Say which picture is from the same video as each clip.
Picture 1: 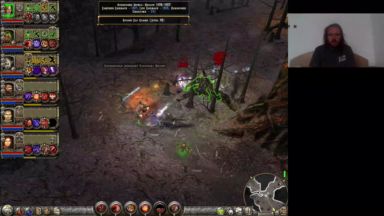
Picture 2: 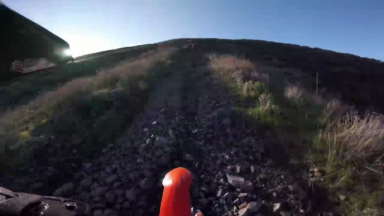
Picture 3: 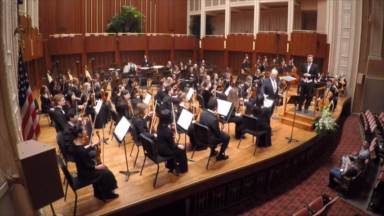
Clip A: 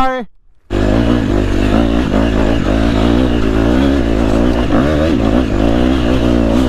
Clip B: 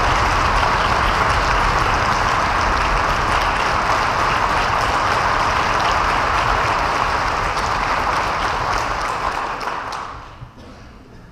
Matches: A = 2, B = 3